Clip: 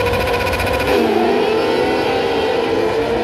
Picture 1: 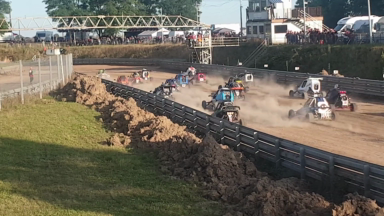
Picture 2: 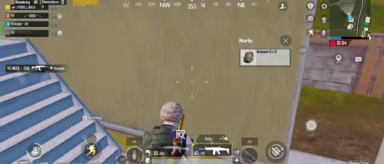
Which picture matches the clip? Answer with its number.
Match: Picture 1